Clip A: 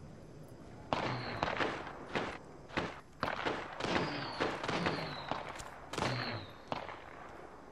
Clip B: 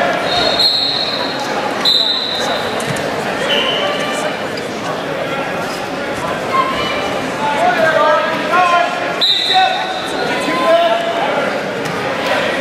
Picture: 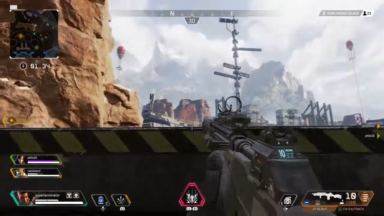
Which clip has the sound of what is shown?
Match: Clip A